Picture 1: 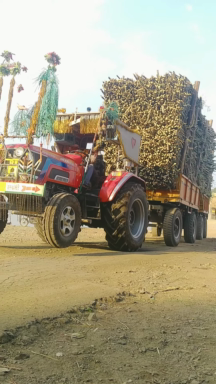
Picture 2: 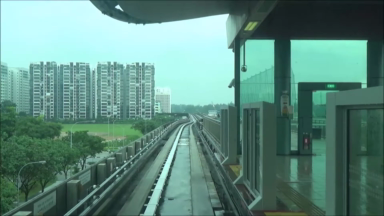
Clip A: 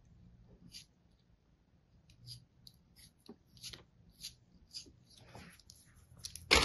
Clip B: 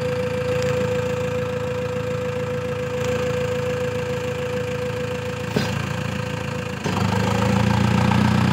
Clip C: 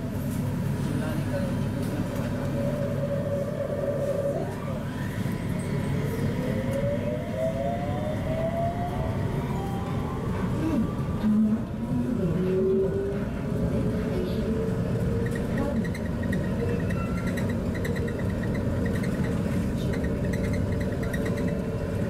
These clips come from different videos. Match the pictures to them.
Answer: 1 B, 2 C